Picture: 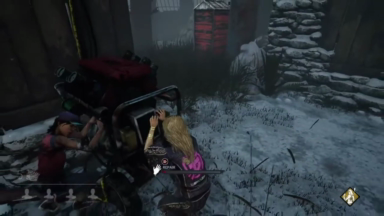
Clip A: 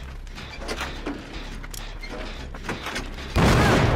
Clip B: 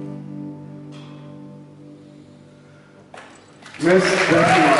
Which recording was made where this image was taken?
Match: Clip A